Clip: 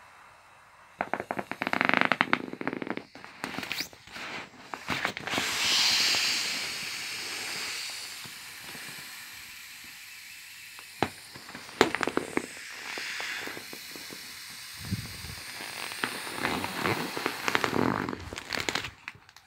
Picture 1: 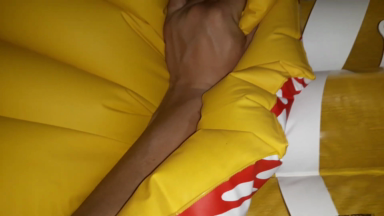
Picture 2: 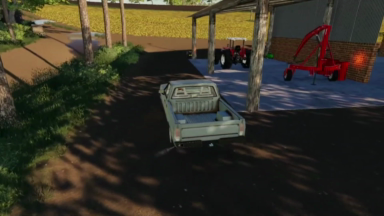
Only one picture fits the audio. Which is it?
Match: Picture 1